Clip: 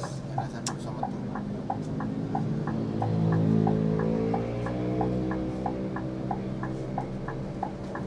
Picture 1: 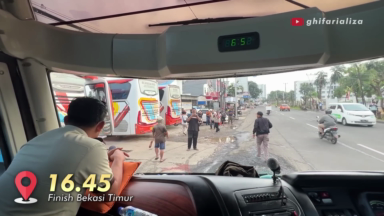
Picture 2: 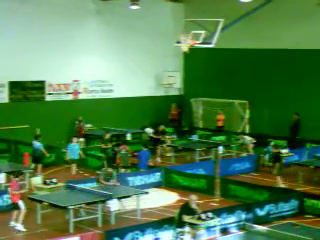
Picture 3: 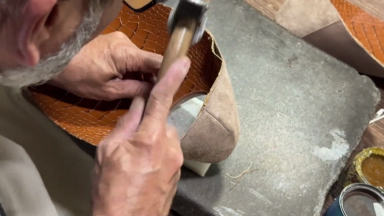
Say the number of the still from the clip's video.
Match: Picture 1